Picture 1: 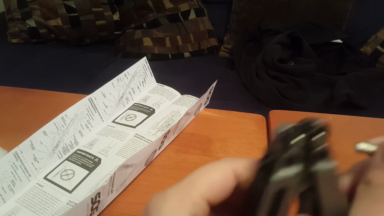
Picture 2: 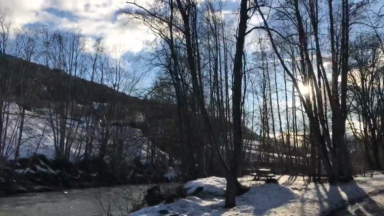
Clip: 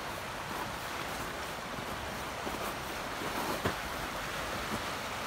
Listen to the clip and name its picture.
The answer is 2